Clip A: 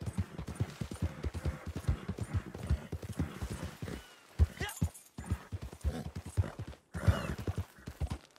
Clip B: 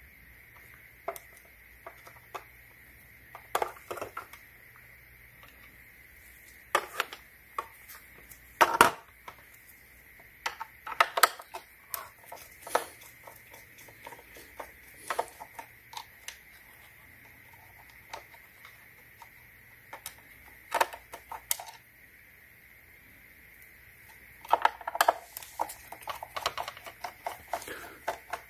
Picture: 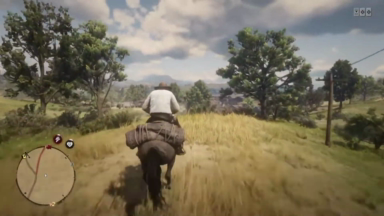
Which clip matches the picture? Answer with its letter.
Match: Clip A